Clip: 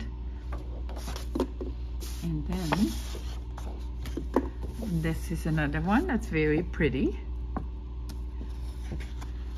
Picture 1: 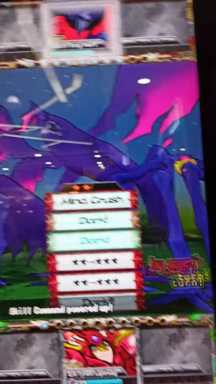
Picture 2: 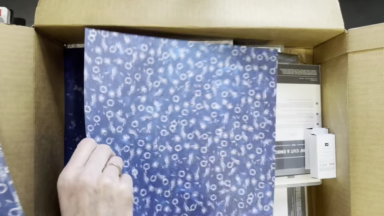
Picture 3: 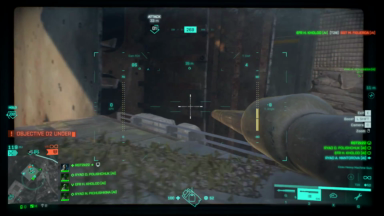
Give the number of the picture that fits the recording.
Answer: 2